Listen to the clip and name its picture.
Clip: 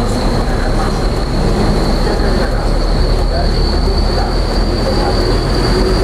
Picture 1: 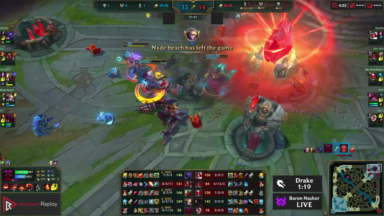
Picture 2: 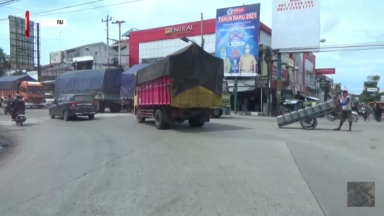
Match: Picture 2